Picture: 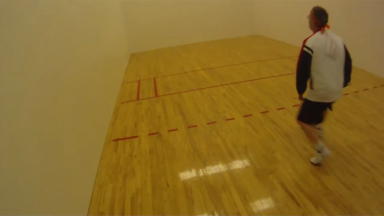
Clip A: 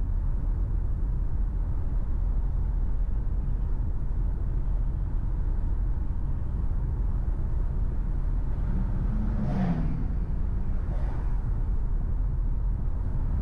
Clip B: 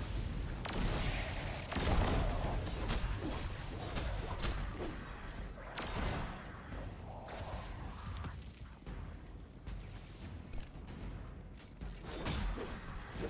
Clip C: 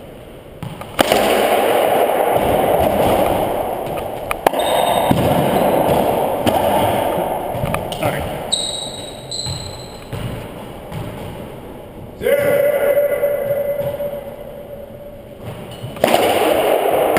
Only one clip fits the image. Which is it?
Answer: C